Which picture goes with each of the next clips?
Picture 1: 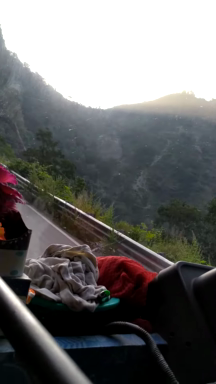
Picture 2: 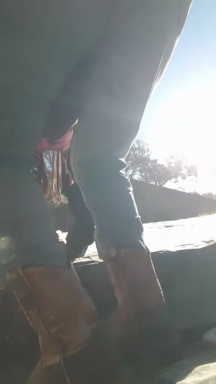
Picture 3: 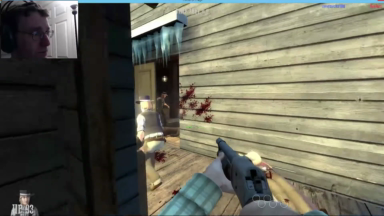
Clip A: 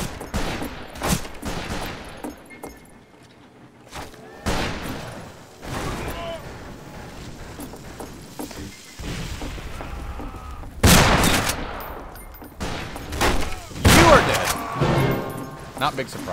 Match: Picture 3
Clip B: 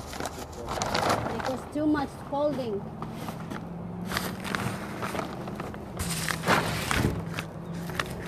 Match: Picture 2